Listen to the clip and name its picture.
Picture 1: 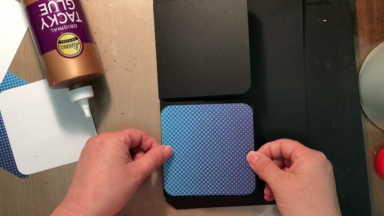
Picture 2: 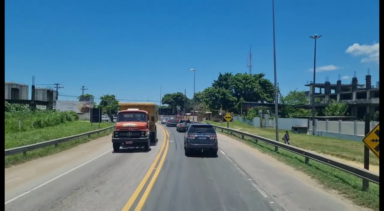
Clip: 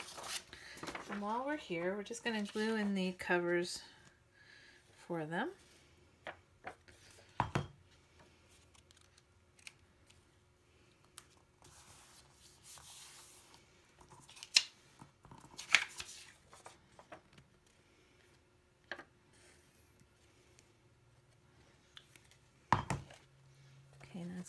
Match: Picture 1